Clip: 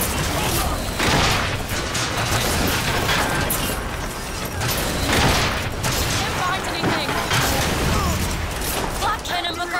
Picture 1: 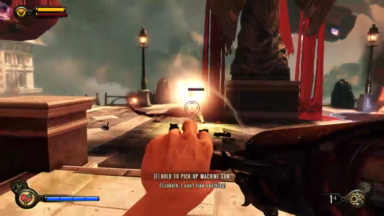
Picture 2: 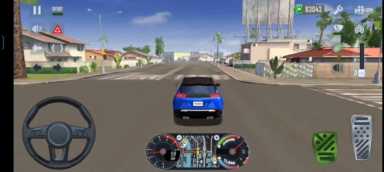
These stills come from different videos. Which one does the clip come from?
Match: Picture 1